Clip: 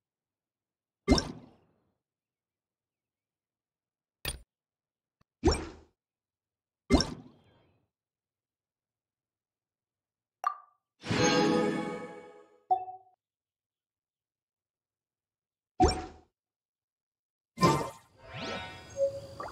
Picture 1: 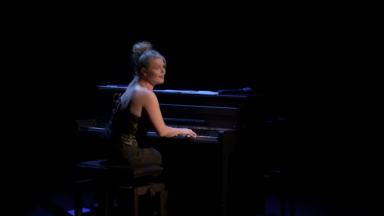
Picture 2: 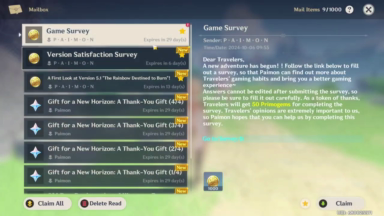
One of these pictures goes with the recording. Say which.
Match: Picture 2